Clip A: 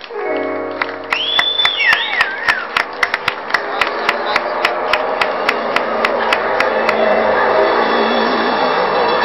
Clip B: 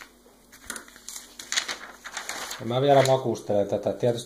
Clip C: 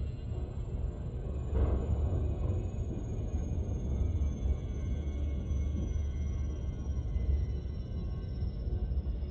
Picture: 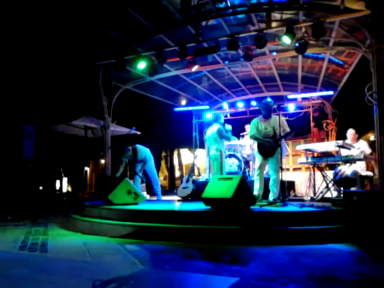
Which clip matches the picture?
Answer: A